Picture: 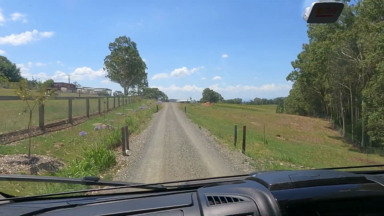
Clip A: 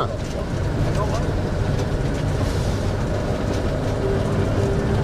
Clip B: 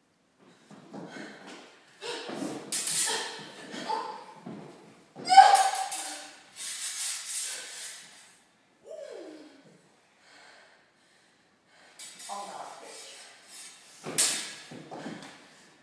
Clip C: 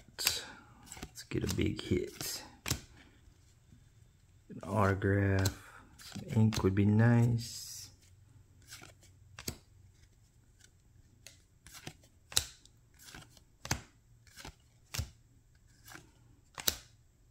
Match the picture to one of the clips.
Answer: A